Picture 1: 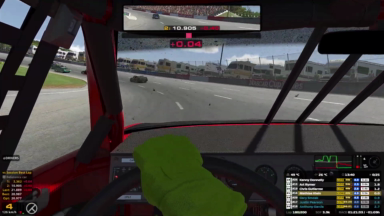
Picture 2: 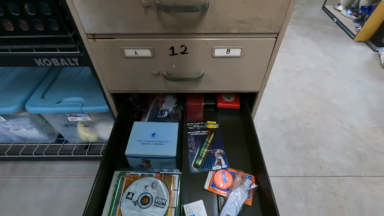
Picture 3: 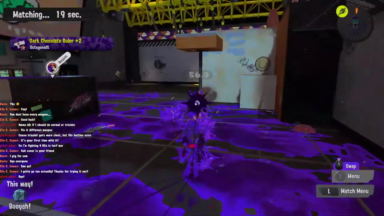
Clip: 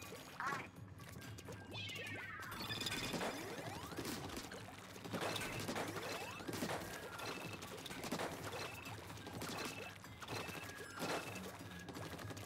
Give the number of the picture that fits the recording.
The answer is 3